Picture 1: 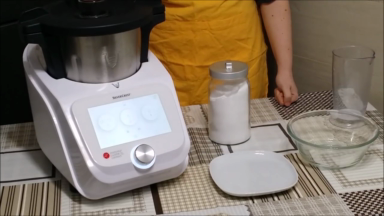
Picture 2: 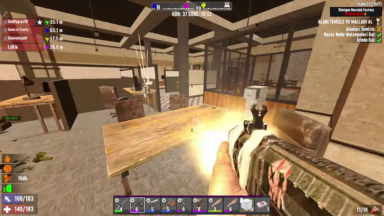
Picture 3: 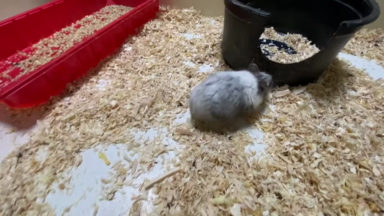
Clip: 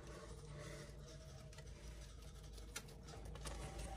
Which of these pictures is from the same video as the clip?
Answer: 3